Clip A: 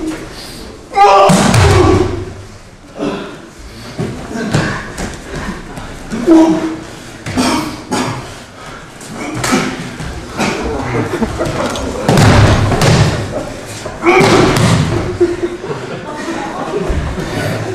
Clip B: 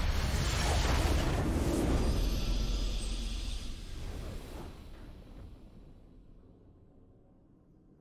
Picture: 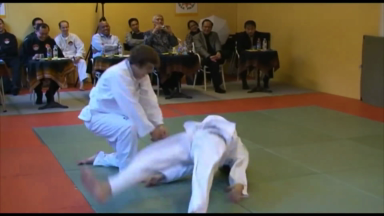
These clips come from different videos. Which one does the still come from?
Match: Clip A